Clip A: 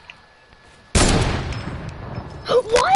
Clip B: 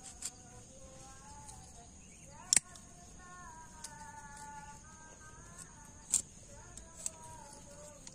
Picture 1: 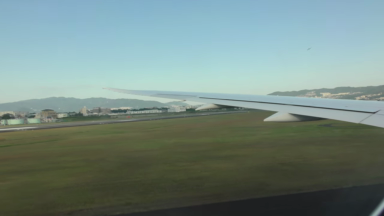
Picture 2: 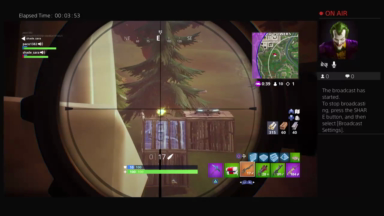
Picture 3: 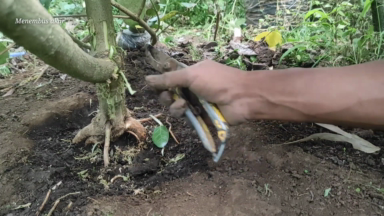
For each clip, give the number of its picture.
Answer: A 2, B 3